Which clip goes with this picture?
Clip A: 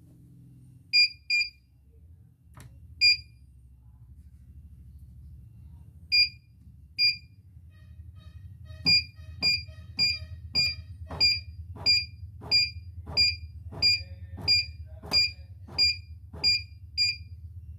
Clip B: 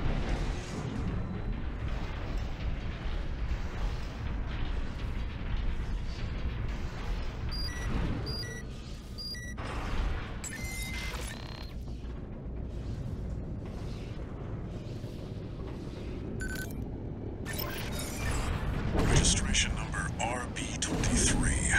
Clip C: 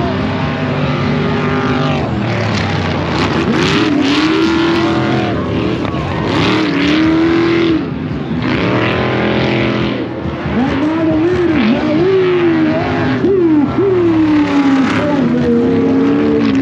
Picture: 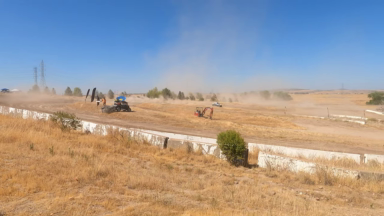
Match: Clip C